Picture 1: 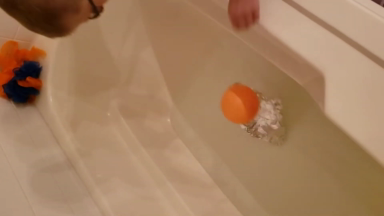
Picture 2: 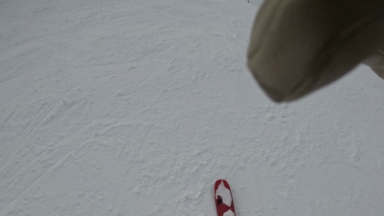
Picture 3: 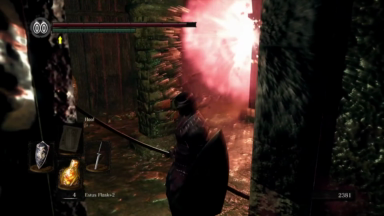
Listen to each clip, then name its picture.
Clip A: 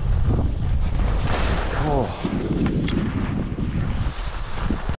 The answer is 2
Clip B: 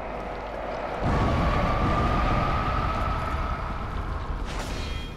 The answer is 3